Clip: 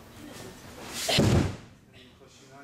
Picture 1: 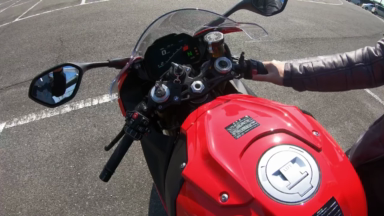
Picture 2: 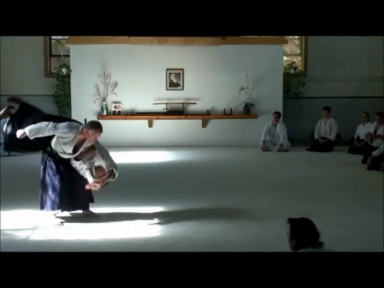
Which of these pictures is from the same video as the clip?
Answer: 2